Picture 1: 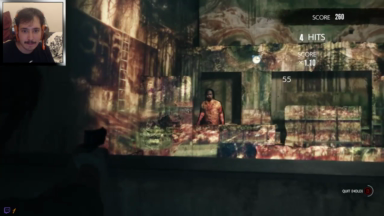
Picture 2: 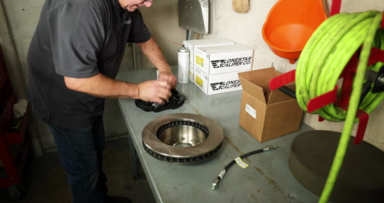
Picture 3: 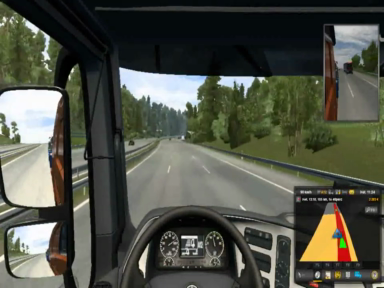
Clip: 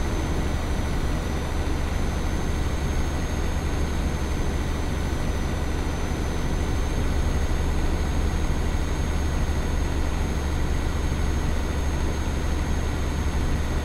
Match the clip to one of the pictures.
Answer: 3